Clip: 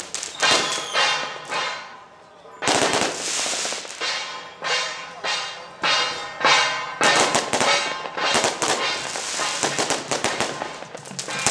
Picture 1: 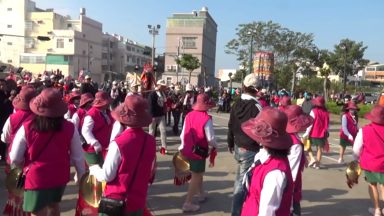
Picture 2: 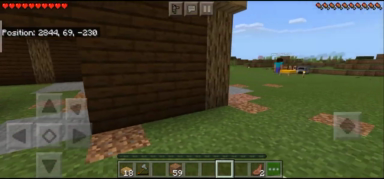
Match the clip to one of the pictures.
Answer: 1